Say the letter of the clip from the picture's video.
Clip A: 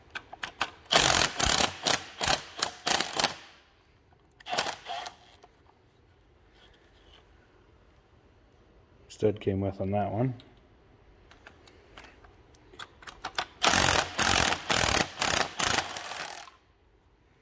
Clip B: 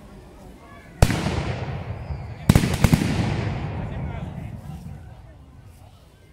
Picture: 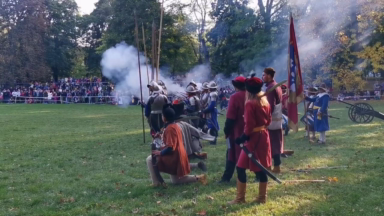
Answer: B